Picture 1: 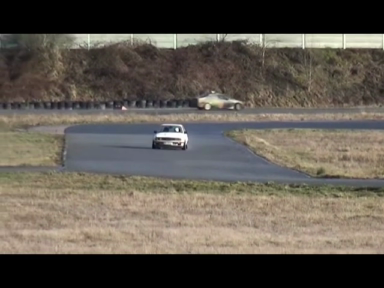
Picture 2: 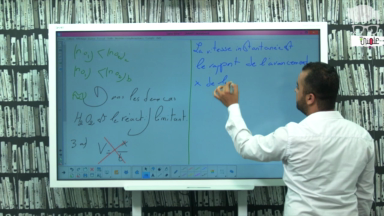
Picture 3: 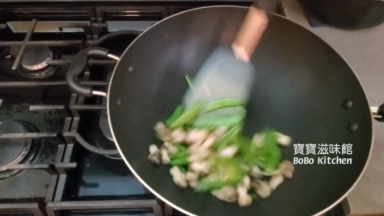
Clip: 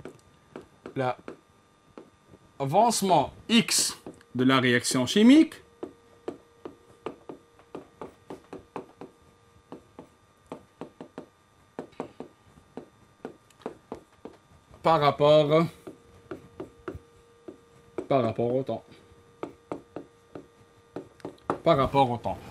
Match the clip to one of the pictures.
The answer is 2